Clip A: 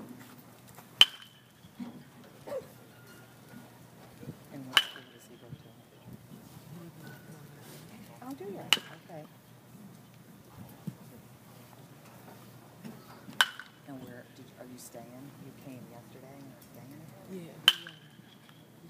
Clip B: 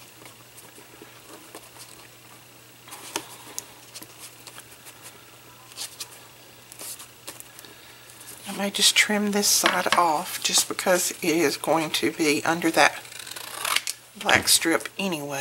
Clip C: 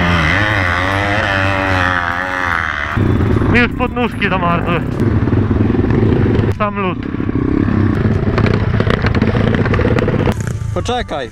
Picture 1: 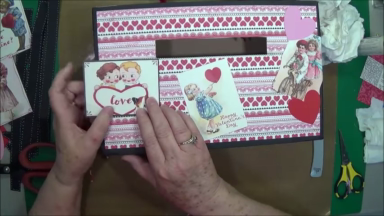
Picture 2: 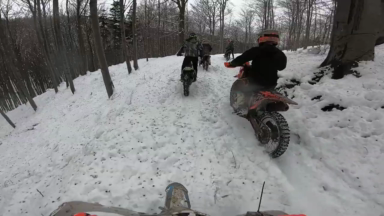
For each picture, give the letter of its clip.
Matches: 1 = B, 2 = C